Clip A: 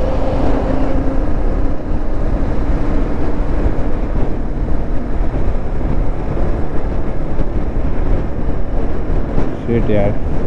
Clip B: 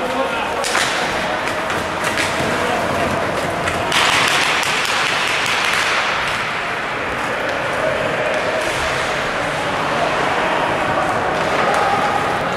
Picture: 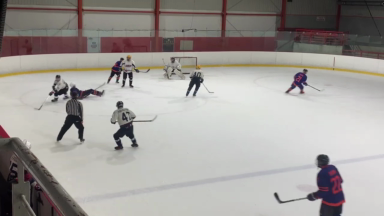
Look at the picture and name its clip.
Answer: B